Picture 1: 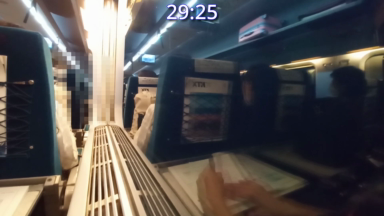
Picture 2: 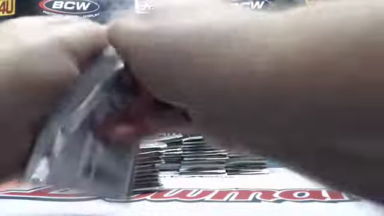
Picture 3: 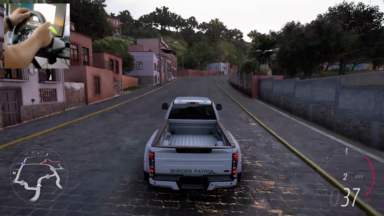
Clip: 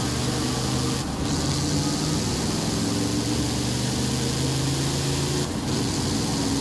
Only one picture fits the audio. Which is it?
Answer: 3